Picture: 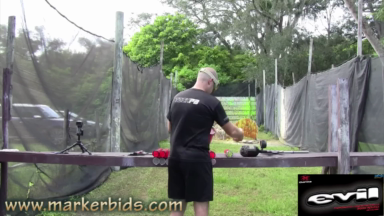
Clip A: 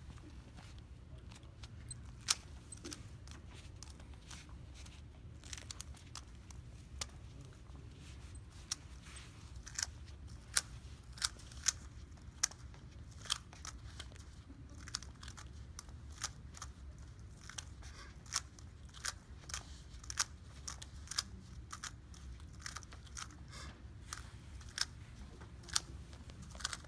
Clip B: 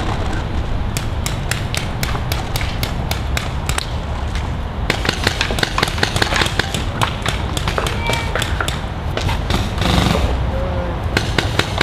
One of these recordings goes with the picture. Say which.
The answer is B